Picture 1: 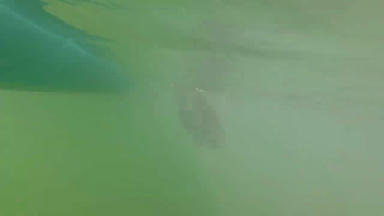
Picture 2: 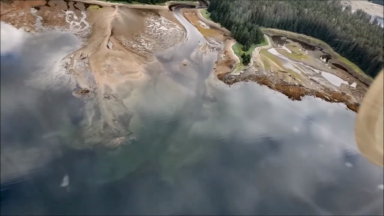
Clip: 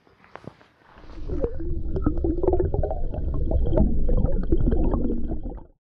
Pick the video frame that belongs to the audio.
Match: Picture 1